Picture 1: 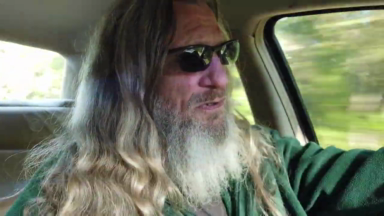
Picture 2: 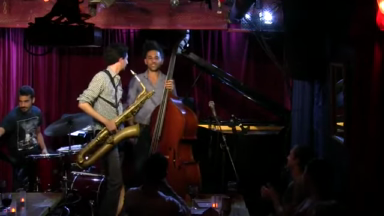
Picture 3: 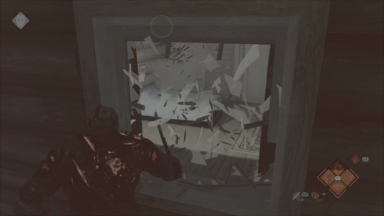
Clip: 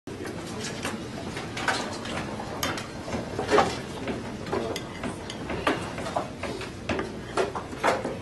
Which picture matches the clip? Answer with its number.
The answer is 2